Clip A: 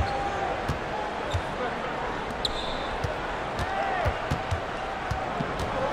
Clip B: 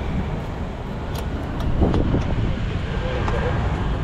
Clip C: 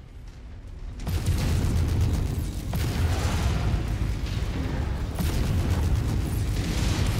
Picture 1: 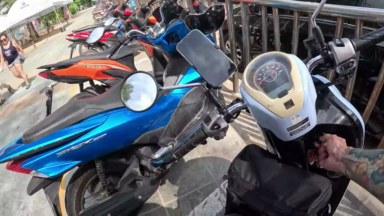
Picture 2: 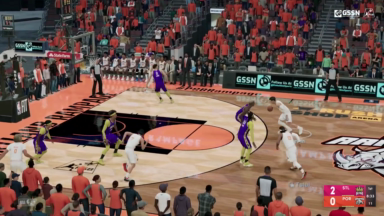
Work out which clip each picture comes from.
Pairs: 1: B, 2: A